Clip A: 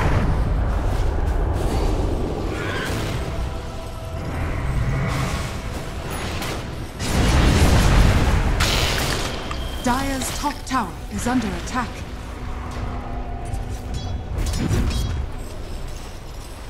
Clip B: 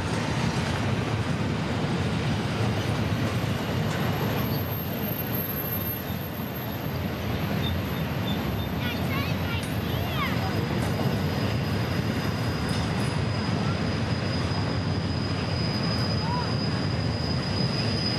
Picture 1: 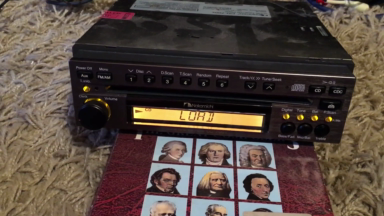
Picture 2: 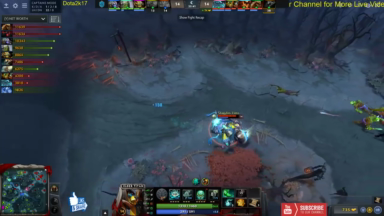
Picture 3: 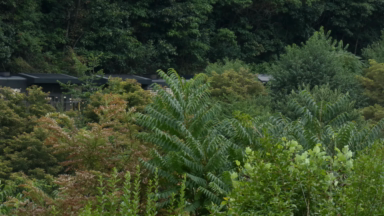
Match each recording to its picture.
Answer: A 2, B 3